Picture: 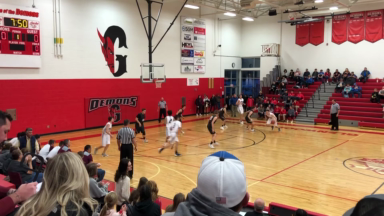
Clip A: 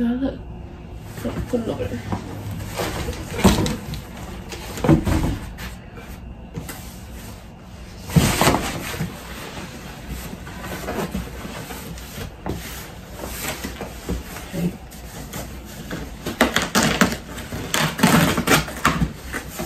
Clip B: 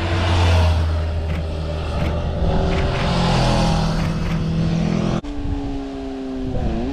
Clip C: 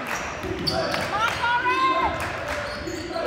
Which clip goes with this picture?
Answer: C